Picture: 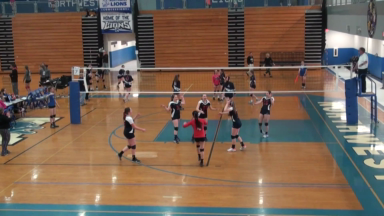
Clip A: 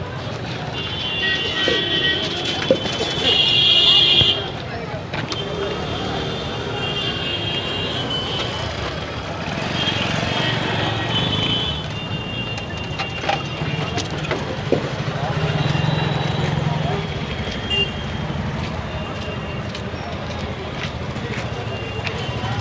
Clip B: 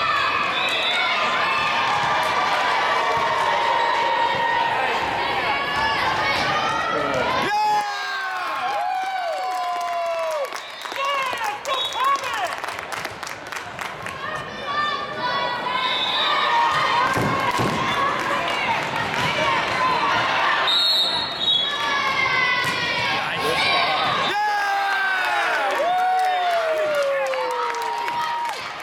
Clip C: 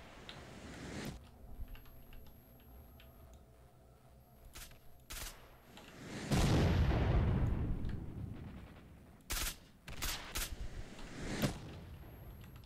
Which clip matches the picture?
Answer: B